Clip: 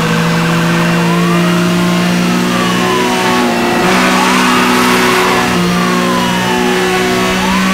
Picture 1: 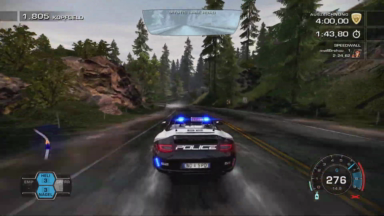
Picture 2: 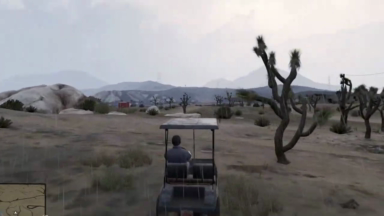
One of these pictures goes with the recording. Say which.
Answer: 1